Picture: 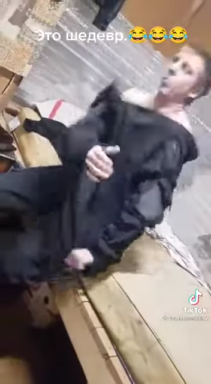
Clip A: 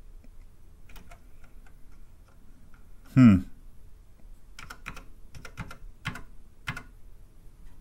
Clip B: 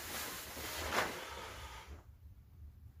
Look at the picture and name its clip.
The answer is B